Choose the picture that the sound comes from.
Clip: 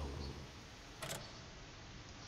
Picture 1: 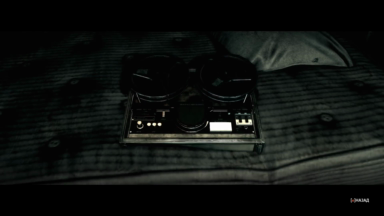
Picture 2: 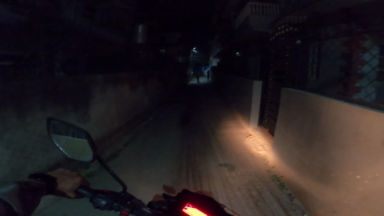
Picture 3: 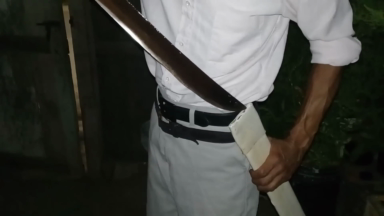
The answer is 1